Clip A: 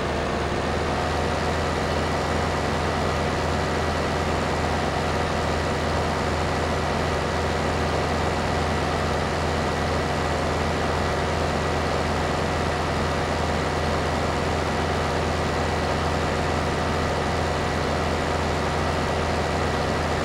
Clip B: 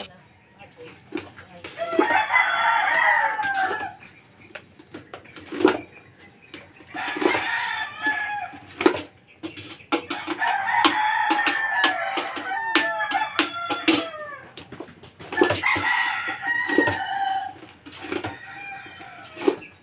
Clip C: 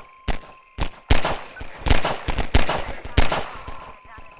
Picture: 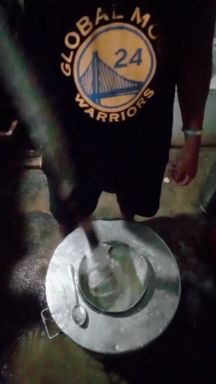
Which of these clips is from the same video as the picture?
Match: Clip B